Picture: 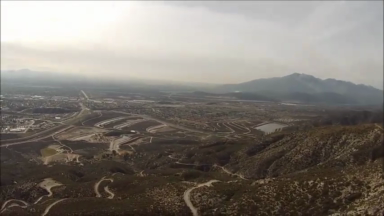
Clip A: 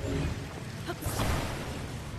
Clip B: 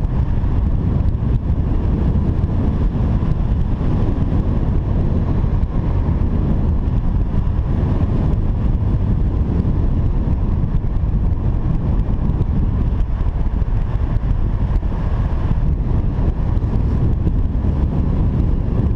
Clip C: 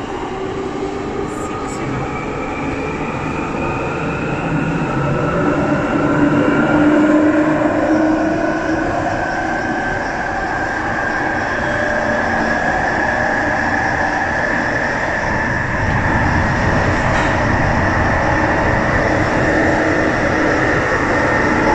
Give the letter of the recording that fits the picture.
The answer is B